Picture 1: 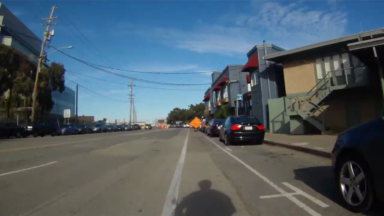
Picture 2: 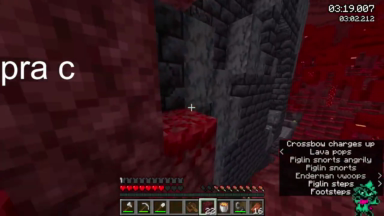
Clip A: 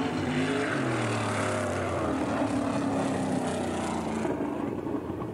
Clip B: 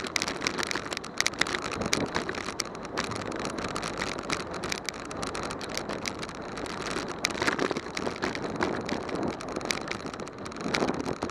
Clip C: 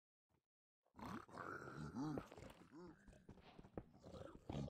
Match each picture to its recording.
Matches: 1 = B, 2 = C